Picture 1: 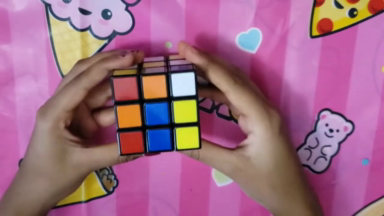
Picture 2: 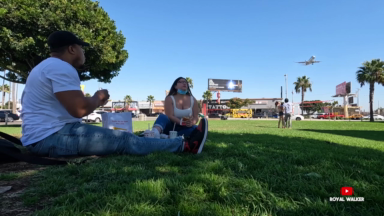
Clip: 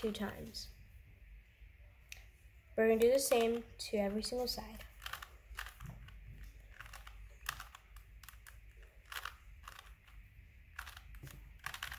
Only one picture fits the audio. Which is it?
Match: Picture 1